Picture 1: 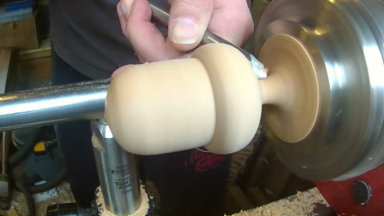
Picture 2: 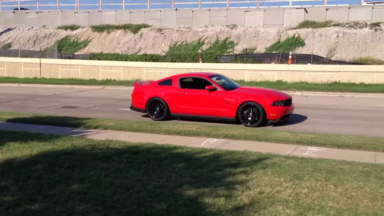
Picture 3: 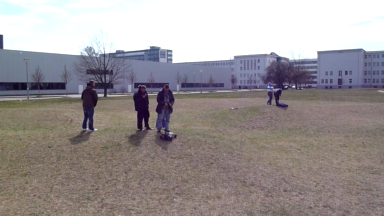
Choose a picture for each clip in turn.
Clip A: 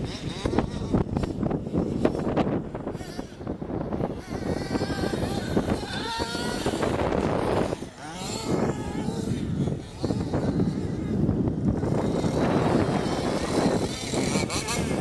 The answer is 3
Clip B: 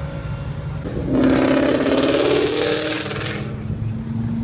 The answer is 2